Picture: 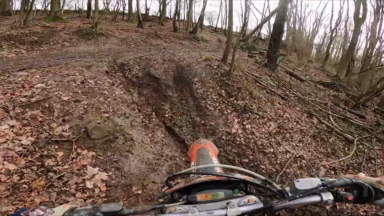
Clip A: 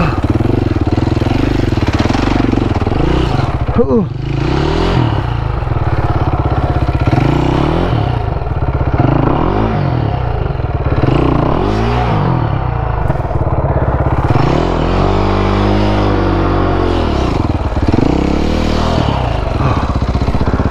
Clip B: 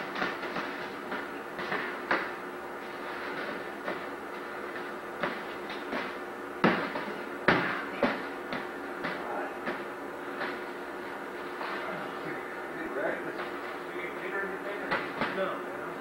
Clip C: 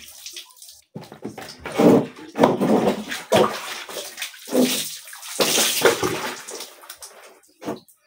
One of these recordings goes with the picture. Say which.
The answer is A